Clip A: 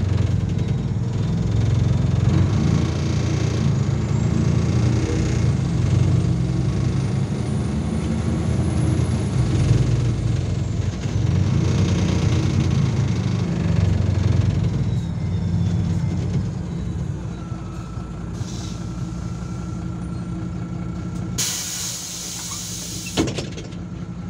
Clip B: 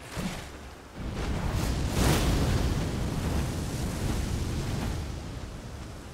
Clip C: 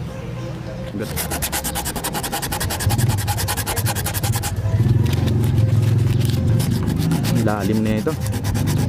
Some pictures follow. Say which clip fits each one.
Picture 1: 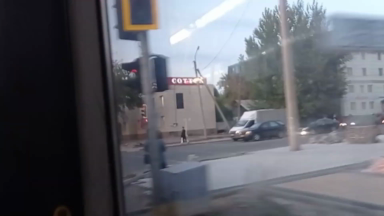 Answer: A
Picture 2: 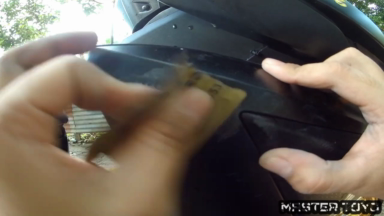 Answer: C